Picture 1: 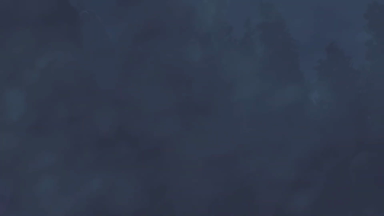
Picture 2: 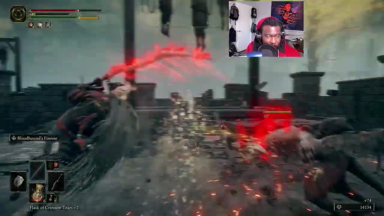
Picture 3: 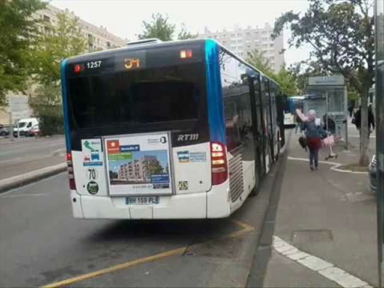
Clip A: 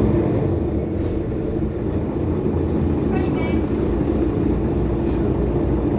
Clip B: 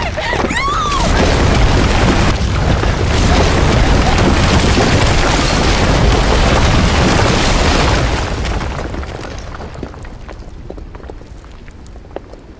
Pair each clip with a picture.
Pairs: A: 3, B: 1